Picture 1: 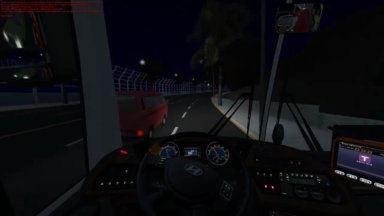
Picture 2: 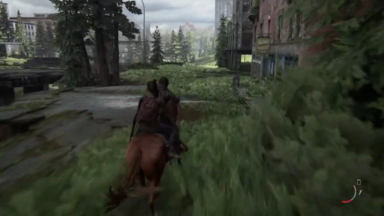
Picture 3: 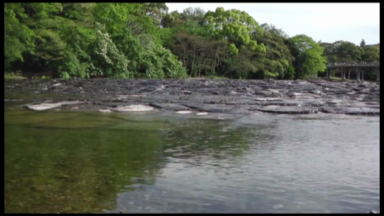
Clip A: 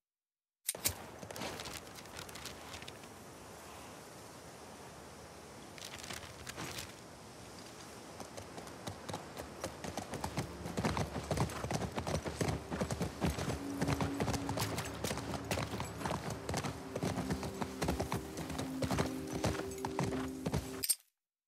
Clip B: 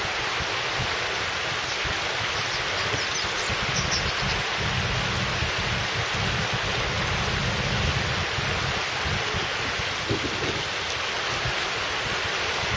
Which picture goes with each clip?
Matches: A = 2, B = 3